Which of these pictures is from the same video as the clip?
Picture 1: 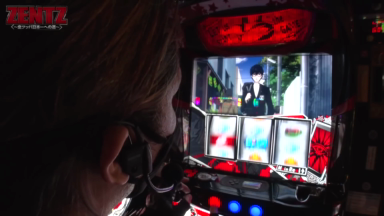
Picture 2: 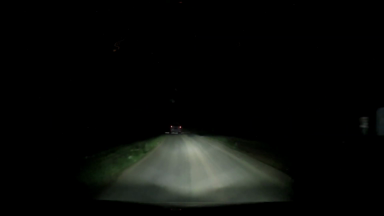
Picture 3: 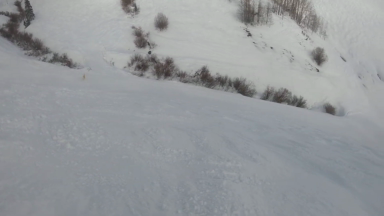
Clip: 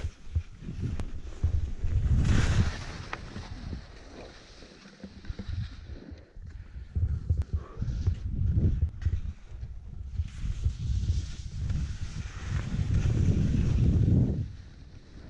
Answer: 3